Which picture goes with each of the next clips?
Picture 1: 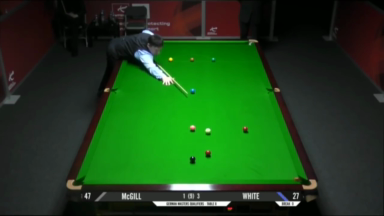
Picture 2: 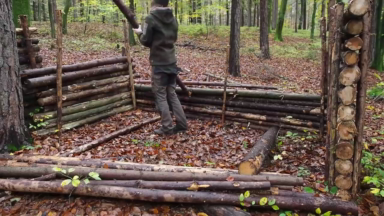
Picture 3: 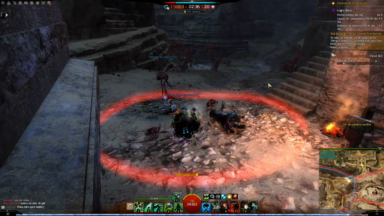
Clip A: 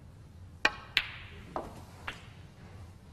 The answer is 1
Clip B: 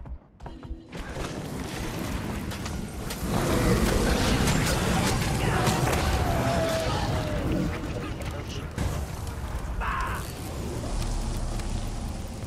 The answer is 3